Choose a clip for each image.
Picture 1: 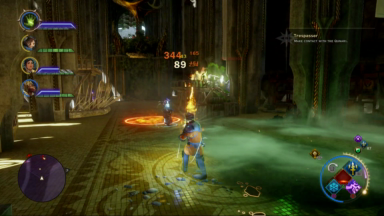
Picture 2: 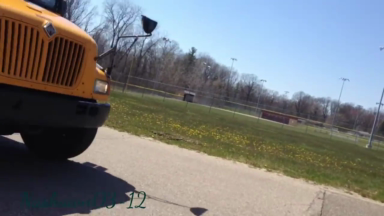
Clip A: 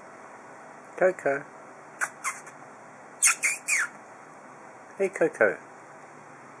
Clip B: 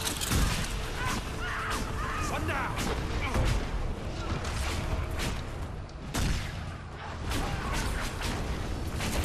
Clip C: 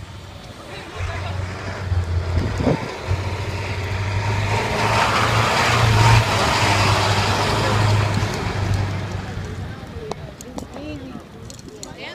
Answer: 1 B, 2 C